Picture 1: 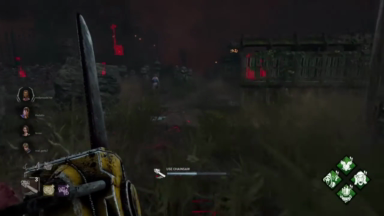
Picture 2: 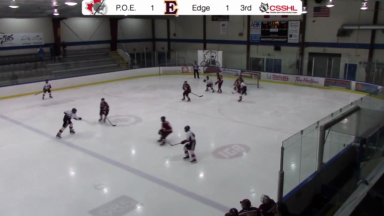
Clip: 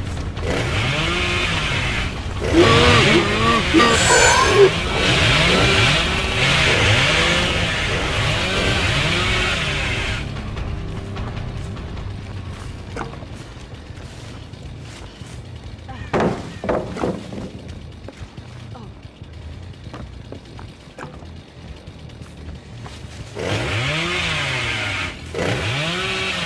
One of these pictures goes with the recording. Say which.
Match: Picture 1